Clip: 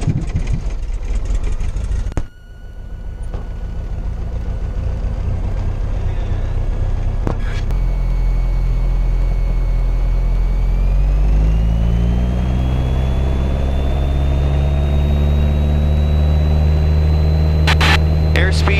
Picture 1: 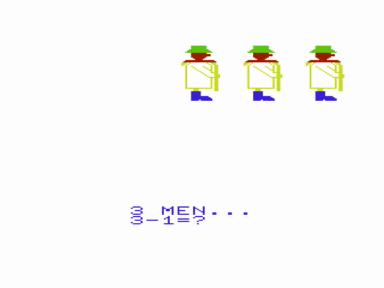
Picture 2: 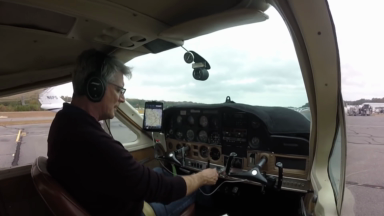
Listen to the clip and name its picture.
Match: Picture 2